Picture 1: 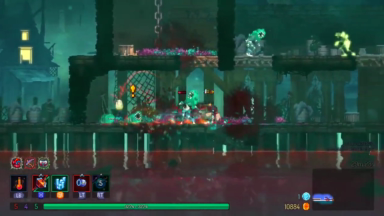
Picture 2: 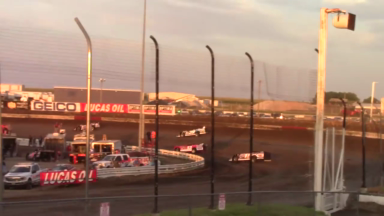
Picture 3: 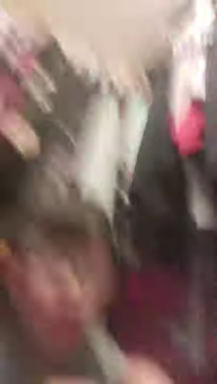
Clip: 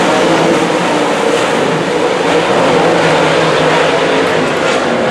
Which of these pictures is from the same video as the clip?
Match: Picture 2